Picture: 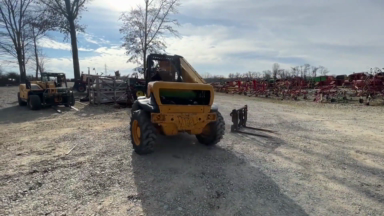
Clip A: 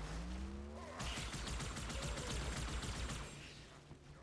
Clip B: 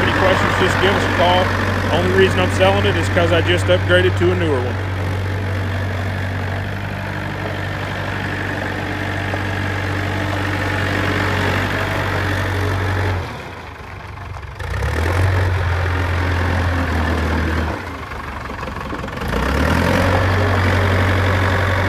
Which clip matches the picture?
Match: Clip B